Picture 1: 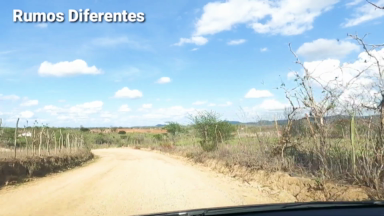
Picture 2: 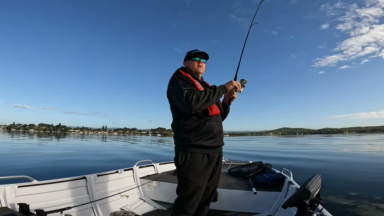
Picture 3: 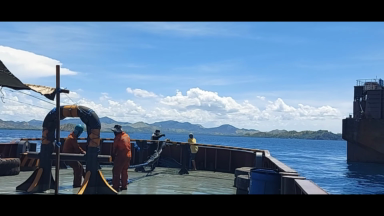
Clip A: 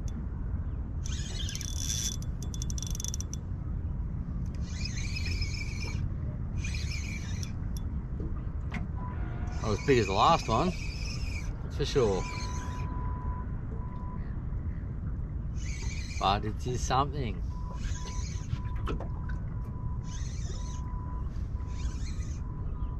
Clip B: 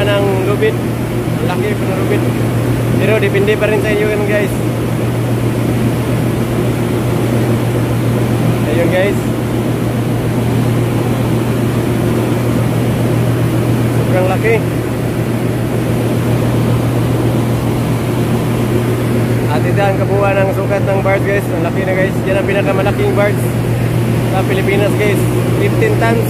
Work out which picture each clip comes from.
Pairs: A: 2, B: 3